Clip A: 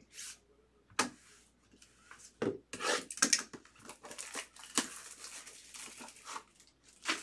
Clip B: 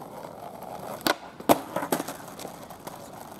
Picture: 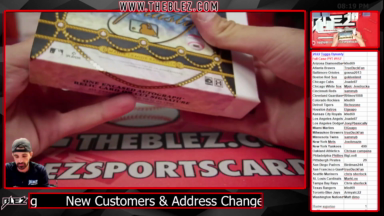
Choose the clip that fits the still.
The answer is A